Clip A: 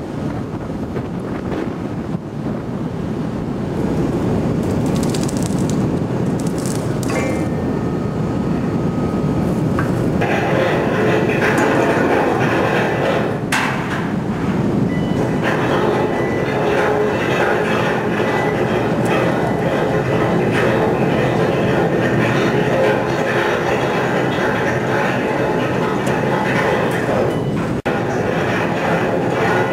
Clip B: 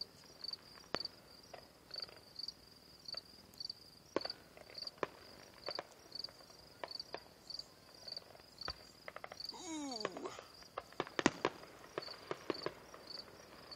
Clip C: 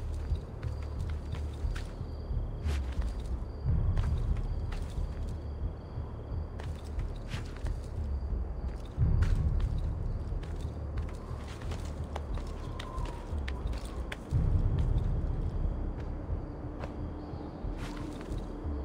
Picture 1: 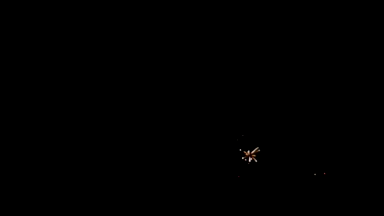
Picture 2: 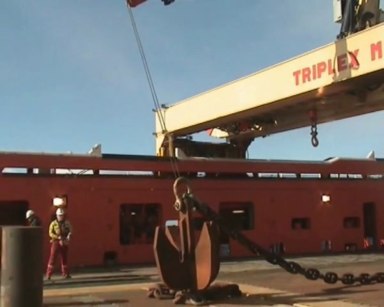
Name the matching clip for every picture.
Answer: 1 B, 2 A